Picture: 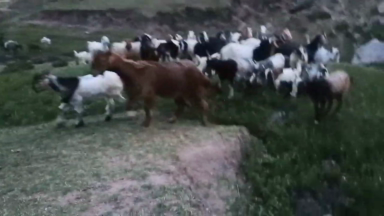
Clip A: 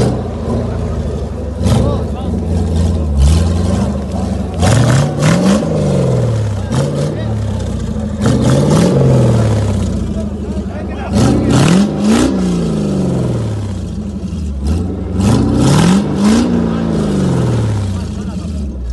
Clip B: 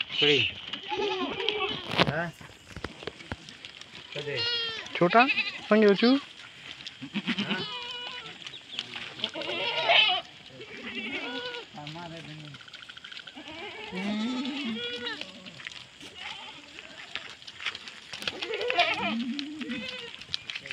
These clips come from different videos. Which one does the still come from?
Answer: B